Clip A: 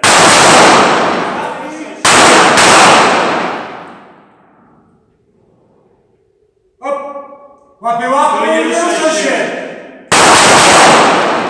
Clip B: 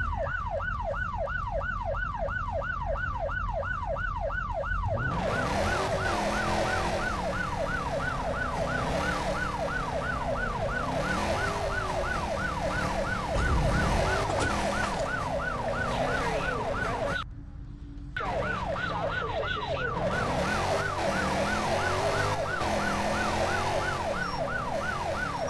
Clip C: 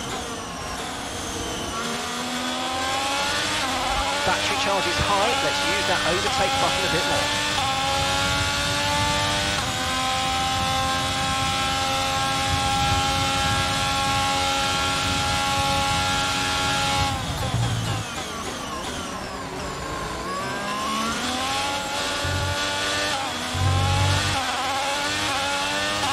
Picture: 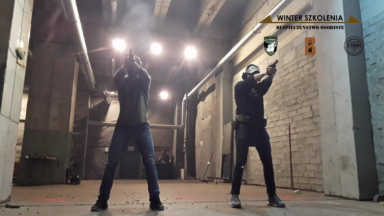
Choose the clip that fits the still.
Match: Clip A